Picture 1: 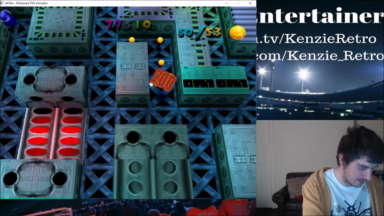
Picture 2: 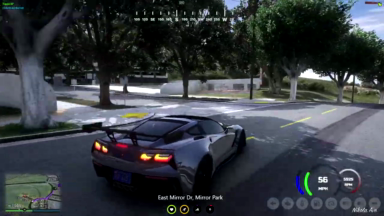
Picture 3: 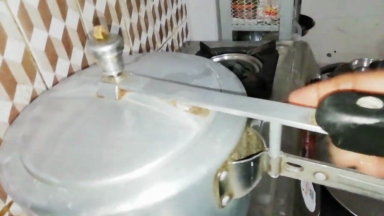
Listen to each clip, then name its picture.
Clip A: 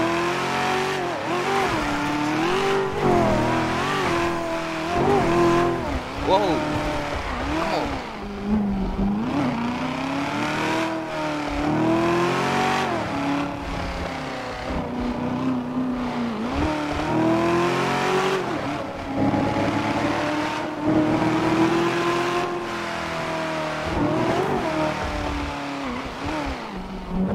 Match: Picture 2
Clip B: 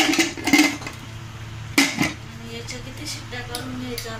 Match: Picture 3